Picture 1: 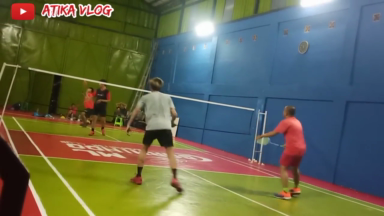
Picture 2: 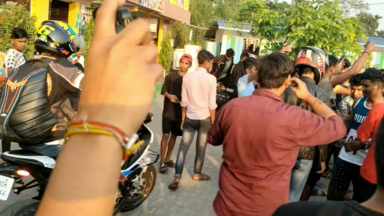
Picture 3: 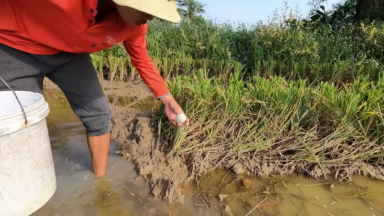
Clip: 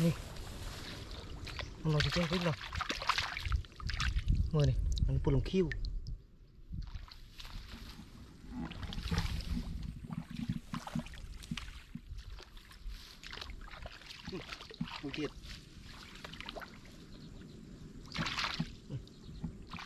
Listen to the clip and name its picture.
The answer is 3